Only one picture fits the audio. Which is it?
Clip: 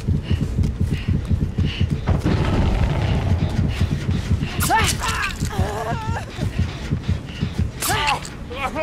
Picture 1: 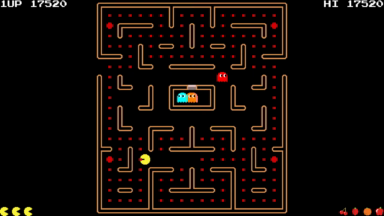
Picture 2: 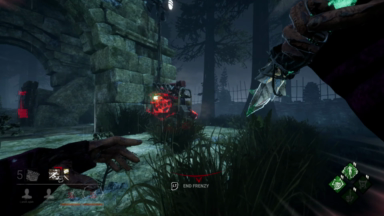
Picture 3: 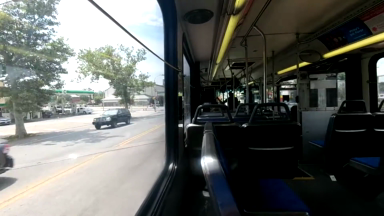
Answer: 2